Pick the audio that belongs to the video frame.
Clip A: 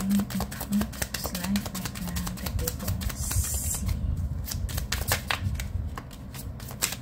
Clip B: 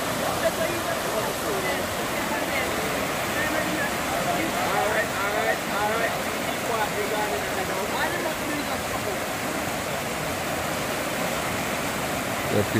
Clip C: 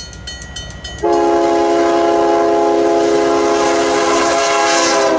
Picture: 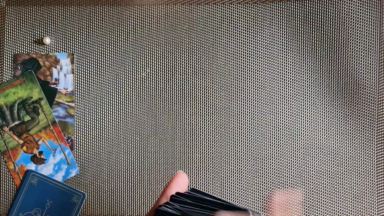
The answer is A